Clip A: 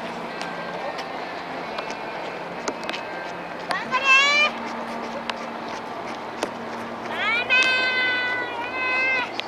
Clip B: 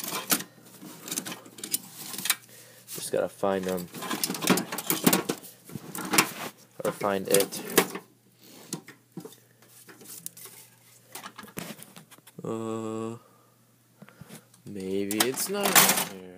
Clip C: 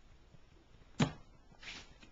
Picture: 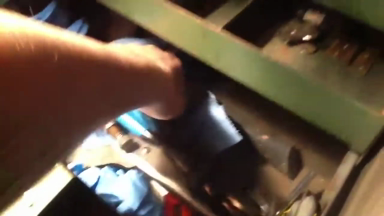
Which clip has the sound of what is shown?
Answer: B